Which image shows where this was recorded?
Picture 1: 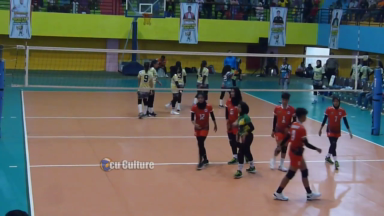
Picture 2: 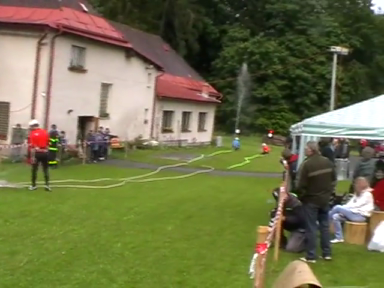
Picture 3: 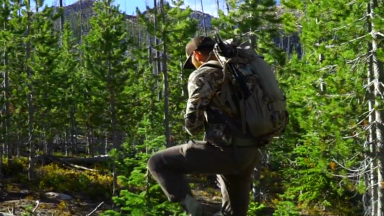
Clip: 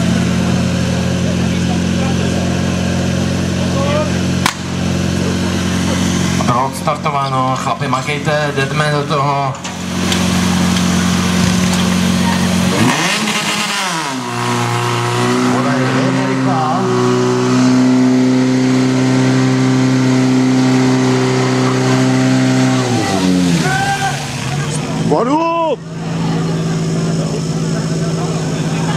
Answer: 2